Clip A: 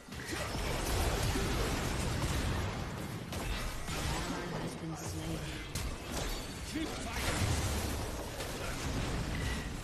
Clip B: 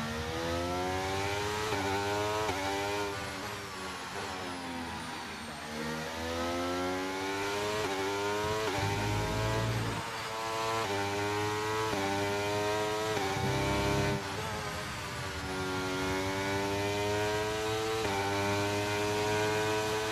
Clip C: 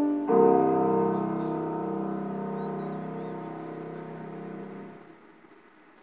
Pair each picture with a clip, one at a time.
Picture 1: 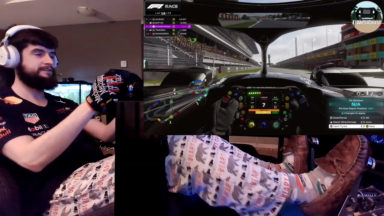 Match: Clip B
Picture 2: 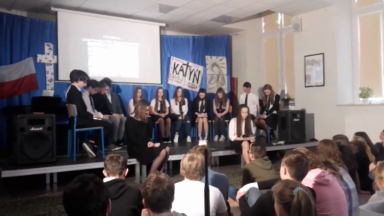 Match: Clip C